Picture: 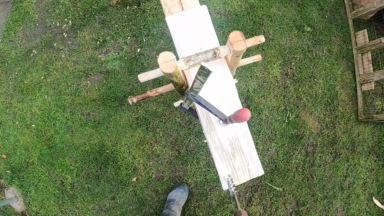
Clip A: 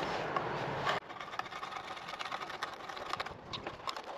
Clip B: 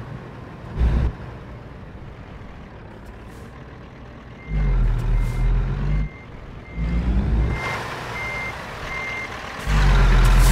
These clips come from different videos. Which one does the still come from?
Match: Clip A